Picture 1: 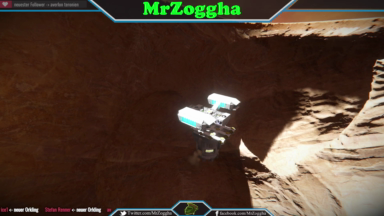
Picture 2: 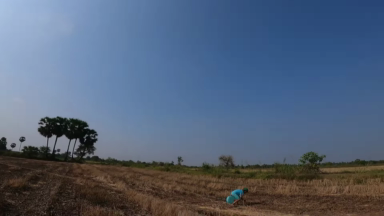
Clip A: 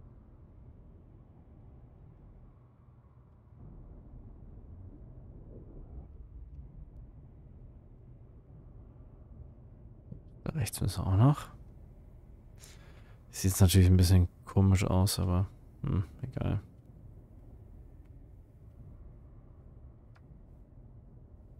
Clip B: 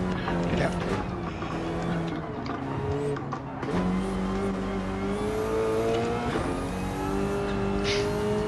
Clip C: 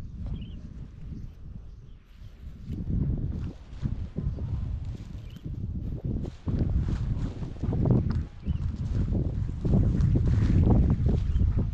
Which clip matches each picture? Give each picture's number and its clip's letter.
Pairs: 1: A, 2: C